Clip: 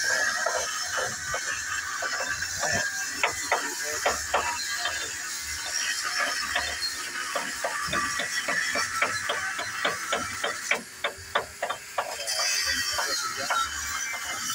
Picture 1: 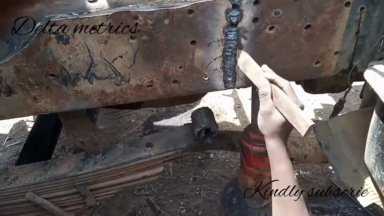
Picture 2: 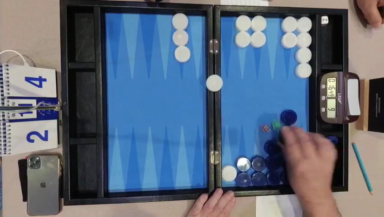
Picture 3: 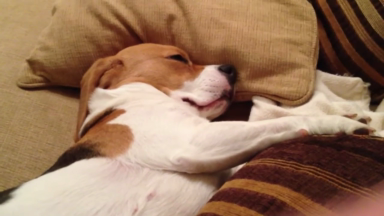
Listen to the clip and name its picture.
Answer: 1